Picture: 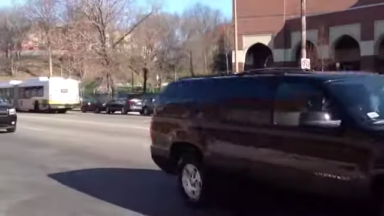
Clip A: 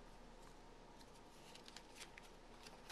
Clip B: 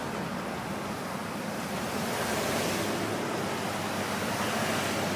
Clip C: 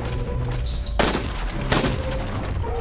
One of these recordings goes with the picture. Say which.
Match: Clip B